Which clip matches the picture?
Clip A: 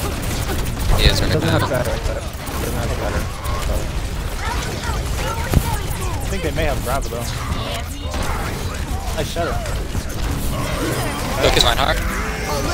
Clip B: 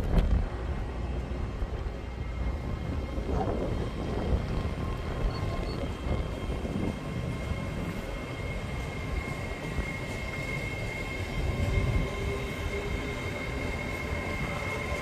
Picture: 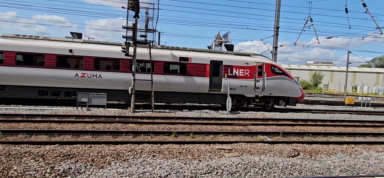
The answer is B